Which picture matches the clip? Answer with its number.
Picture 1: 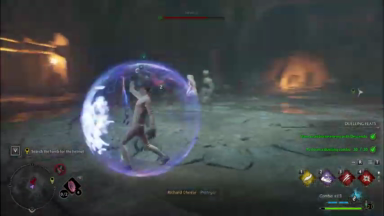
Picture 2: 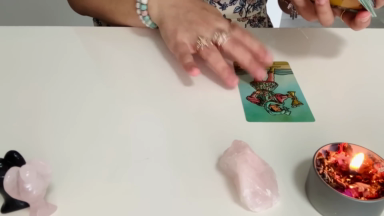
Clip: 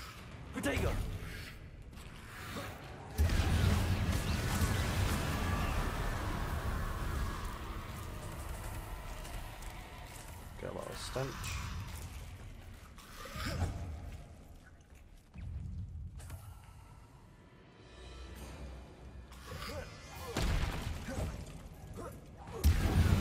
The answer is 1